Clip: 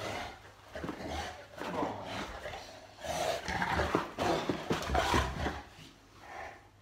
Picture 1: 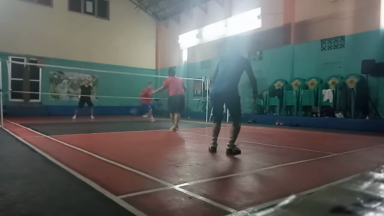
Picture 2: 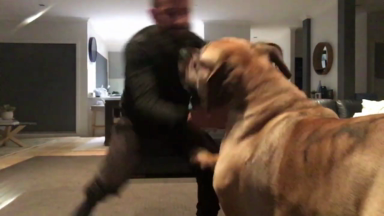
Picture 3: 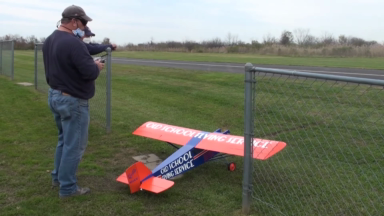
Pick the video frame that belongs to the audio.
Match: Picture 2